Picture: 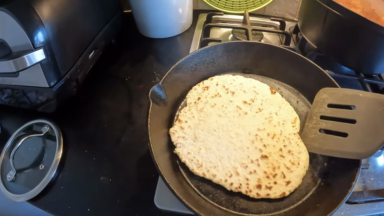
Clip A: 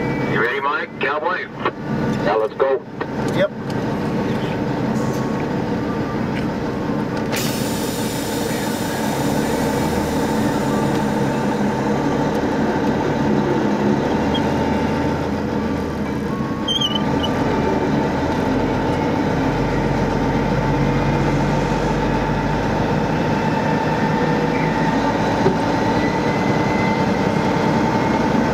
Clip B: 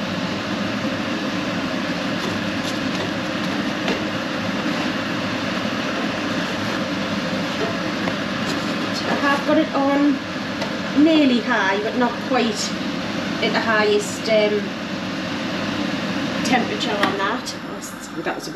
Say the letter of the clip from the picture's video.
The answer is B